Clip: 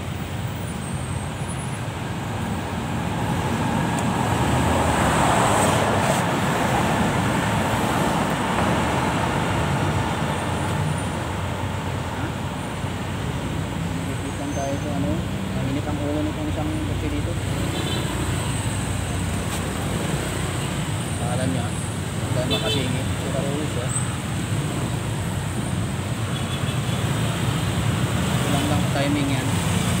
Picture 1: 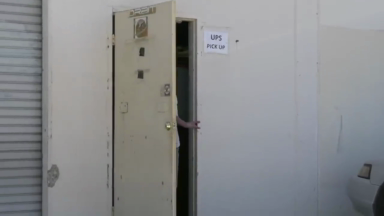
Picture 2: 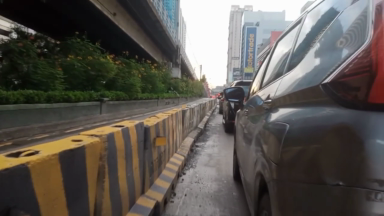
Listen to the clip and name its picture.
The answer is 2